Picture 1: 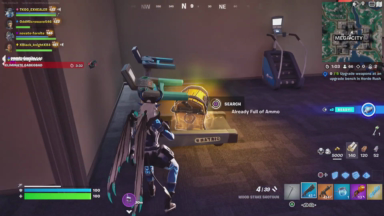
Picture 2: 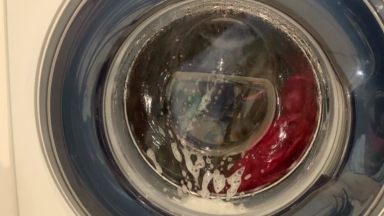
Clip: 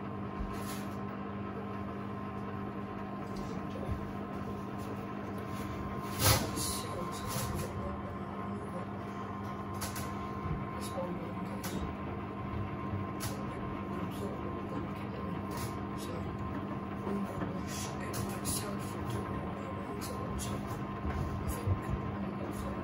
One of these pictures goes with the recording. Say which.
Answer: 2